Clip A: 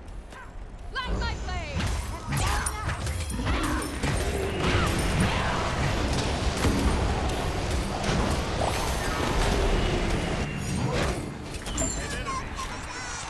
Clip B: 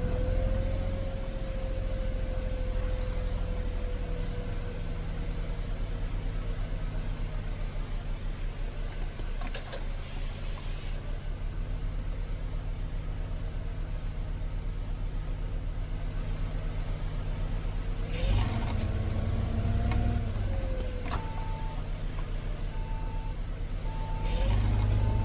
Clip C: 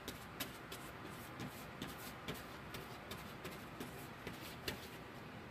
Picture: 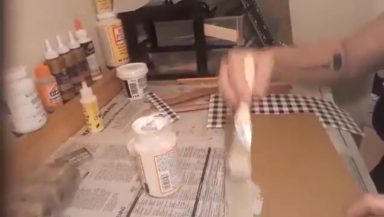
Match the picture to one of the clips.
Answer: C